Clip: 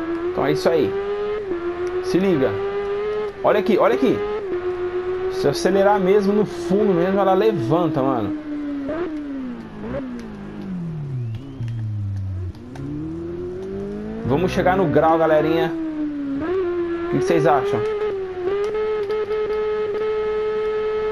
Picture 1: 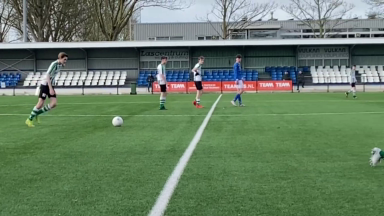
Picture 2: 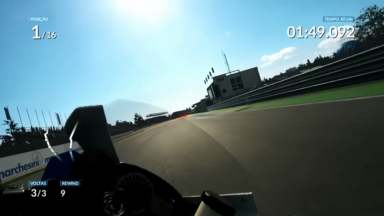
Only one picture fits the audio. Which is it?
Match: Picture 2